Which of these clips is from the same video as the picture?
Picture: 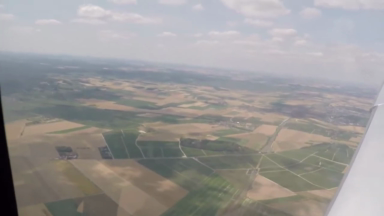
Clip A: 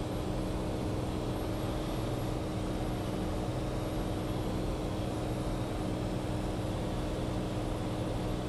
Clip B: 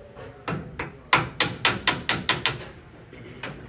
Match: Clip A